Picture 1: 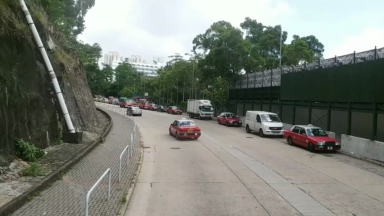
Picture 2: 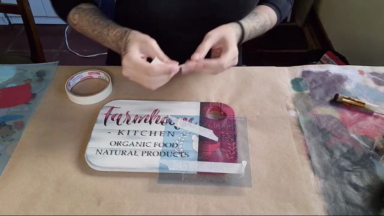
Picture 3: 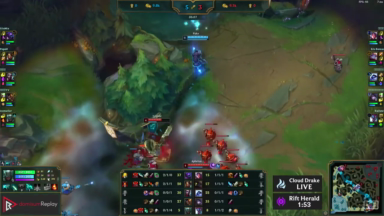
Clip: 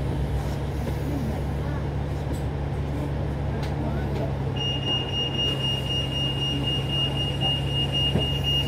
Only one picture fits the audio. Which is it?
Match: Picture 1